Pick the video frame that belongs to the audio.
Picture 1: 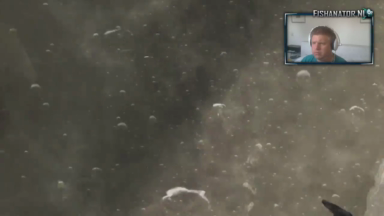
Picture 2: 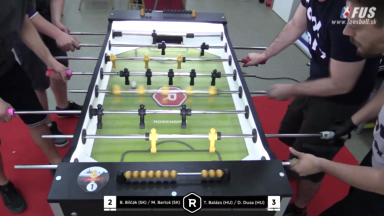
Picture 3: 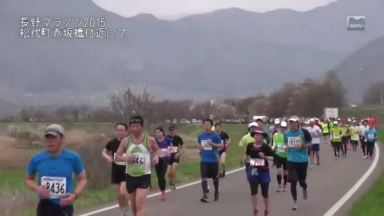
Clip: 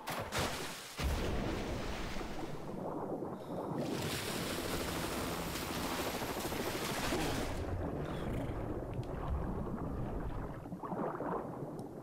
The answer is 1